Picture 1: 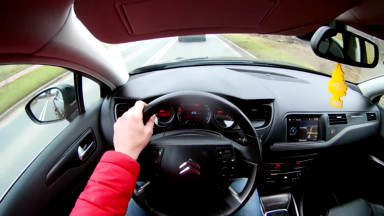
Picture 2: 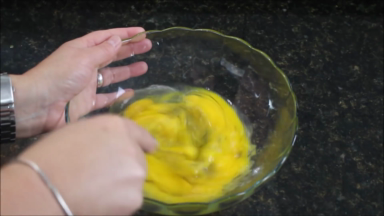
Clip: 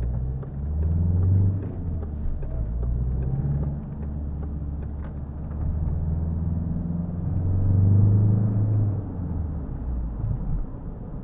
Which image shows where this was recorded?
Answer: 1